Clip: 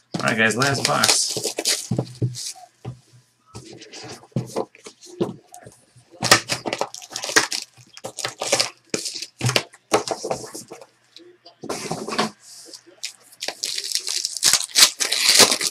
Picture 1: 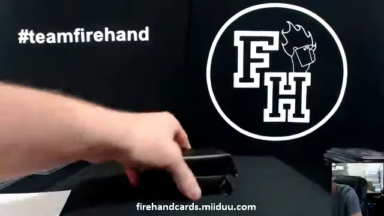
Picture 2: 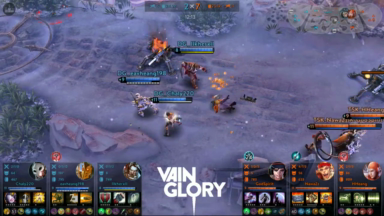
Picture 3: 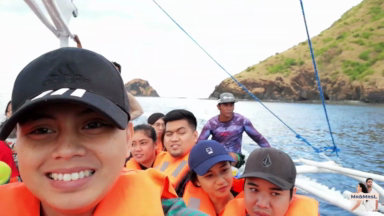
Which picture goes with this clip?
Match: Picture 1